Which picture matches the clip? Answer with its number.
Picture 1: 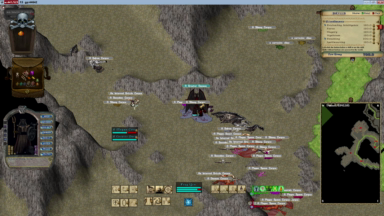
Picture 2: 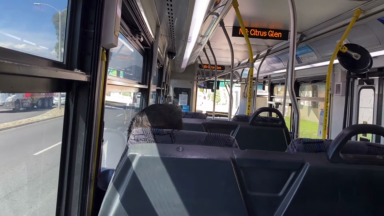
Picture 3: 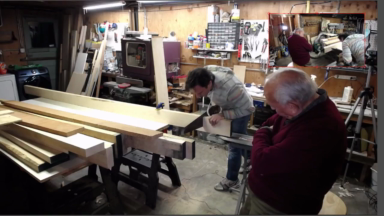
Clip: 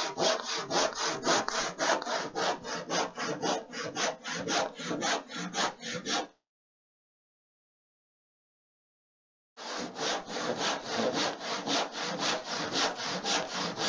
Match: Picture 3